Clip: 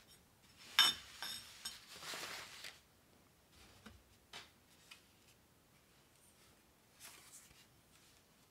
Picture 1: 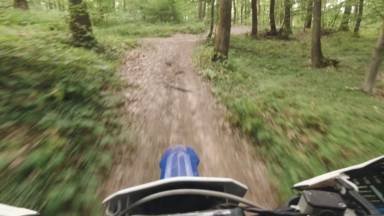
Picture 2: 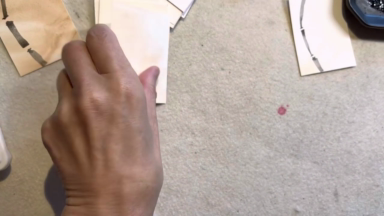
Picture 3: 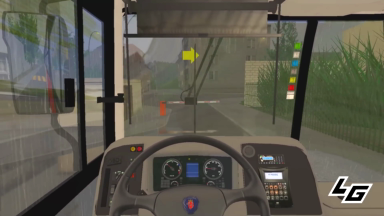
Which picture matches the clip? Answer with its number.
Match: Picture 2